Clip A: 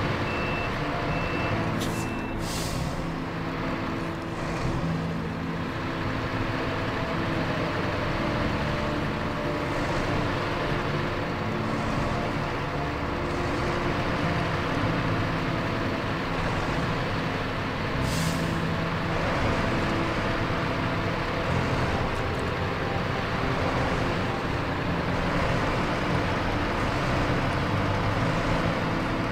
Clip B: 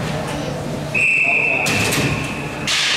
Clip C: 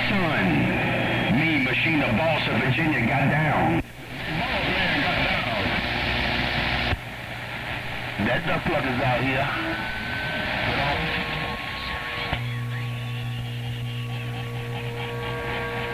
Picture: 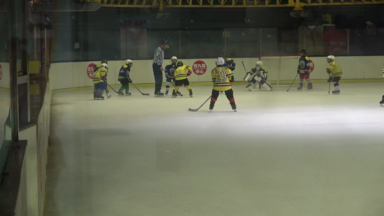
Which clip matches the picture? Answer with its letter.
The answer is B